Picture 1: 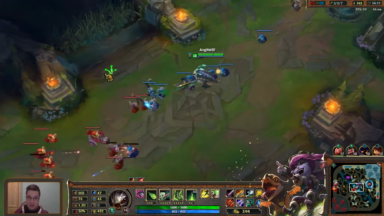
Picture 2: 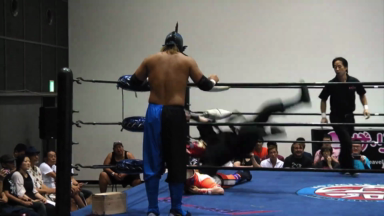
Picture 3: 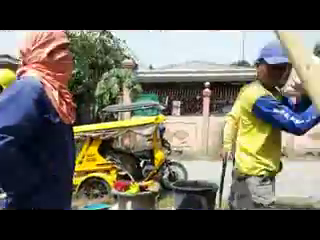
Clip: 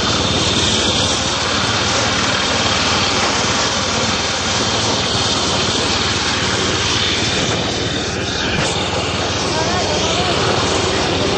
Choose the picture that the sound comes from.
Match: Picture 3